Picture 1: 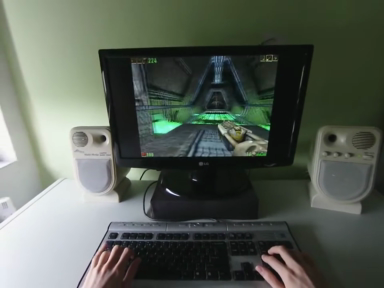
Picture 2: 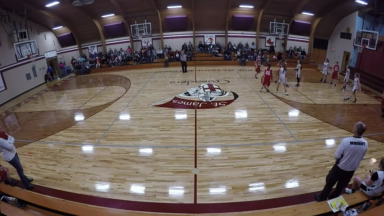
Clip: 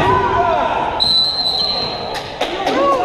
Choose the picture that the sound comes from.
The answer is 2